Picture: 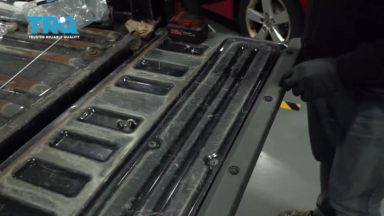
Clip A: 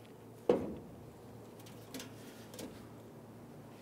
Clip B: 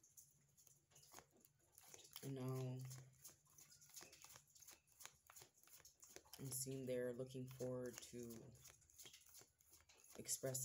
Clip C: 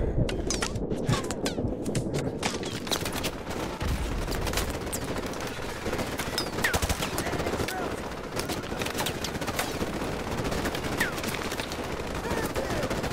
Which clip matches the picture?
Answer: A